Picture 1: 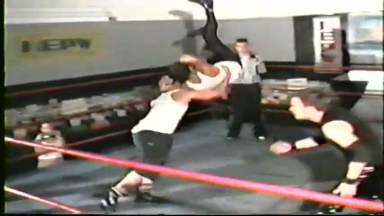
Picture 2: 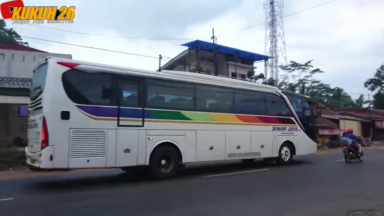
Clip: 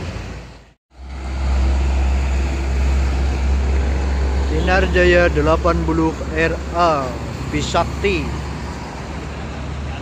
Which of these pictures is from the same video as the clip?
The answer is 2